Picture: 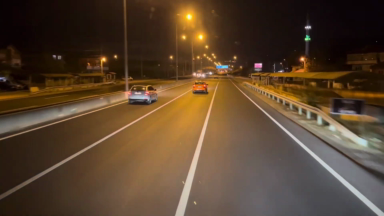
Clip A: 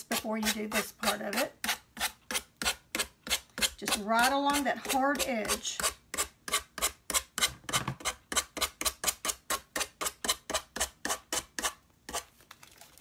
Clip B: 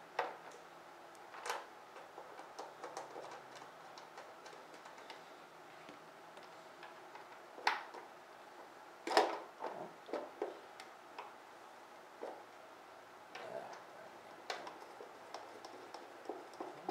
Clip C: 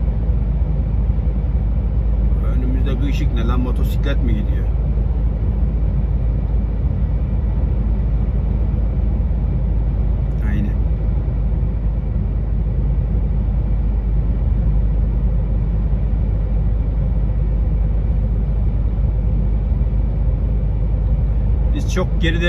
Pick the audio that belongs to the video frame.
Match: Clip C